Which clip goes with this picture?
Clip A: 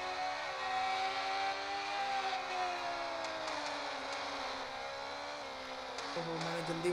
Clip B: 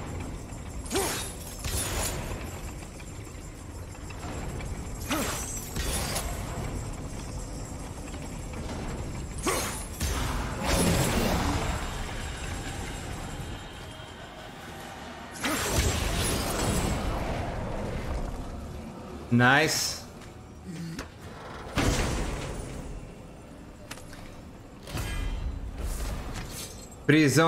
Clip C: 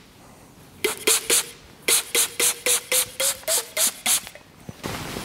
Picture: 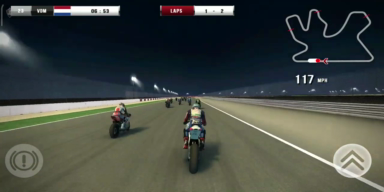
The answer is A